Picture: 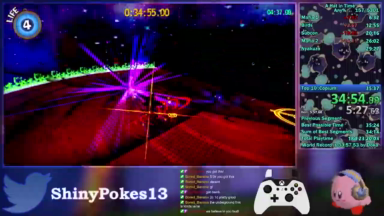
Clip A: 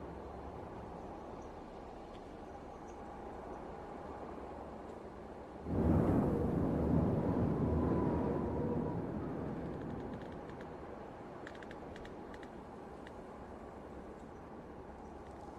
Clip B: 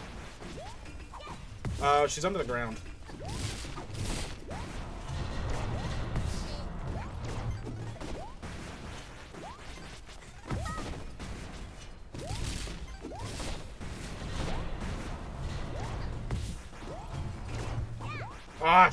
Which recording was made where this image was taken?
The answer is B